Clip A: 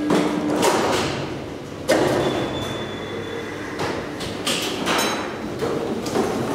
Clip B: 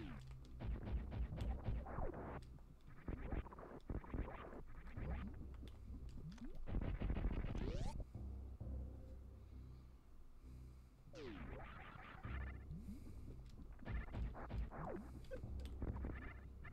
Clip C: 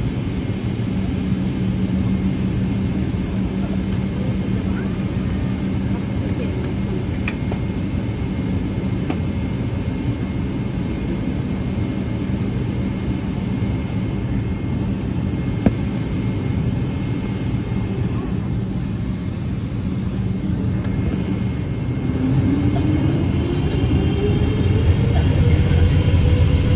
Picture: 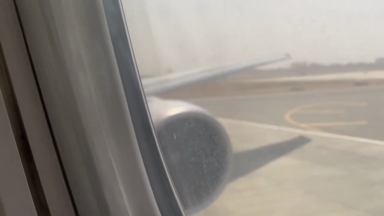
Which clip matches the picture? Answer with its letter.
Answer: C